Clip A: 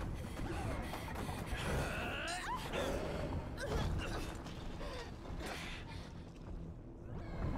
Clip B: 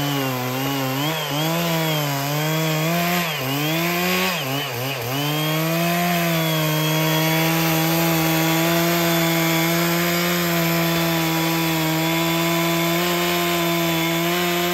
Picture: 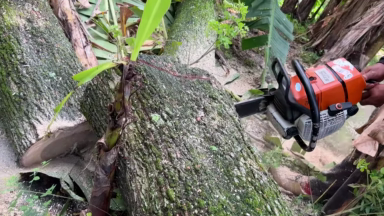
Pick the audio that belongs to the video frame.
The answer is B